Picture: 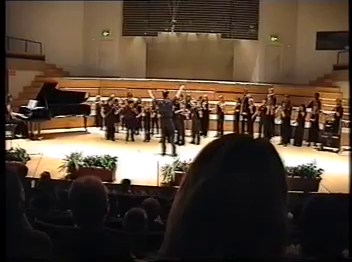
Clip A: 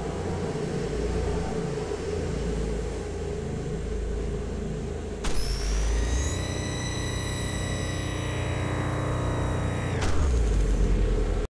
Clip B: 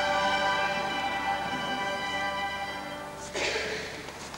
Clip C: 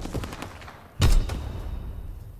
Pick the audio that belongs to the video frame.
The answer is B